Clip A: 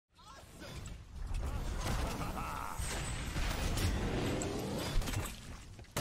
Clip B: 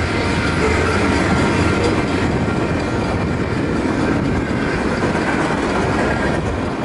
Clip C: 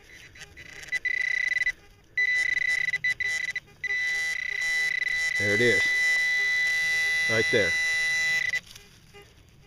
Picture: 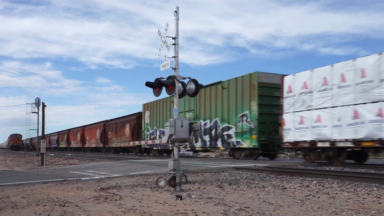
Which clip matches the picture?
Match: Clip B